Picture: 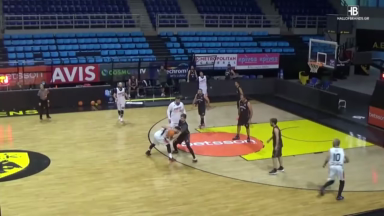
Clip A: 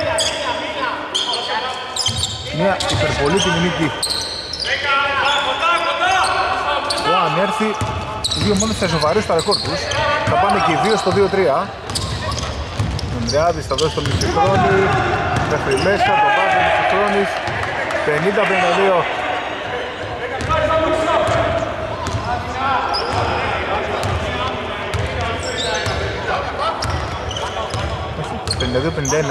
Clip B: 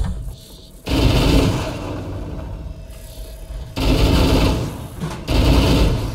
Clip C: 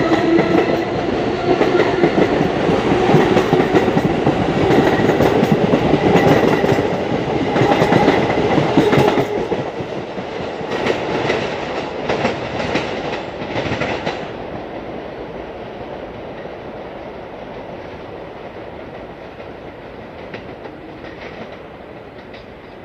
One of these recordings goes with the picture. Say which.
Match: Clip A